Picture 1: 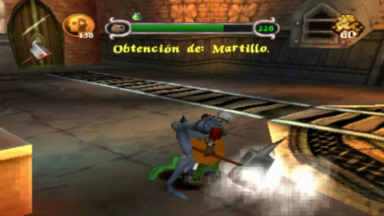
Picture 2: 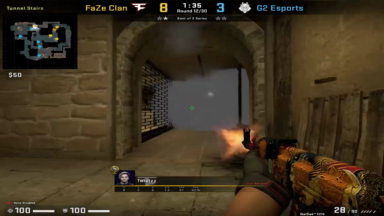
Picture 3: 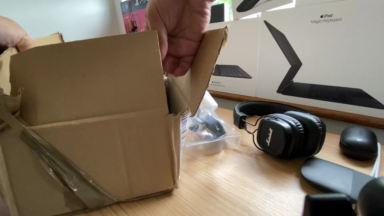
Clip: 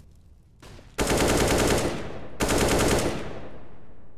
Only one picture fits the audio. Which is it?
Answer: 2